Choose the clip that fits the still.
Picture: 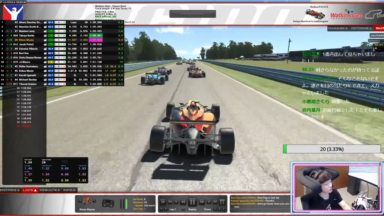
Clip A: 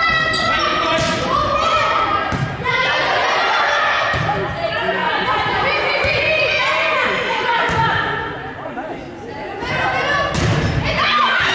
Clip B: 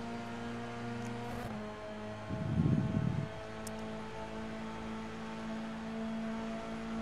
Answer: B